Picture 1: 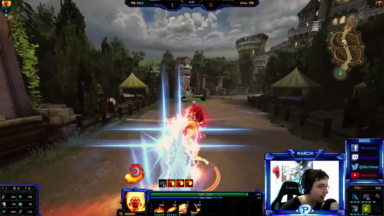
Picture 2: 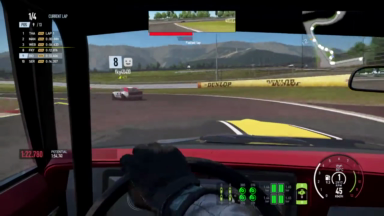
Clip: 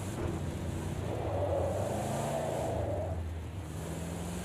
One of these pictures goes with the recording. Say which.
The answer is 2